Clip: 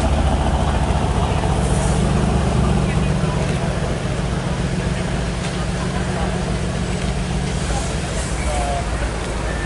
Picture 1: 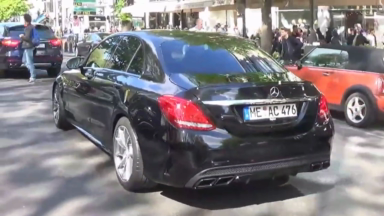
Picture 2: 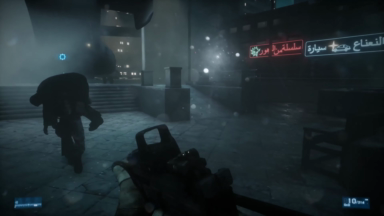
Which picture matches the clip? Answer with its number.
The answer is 1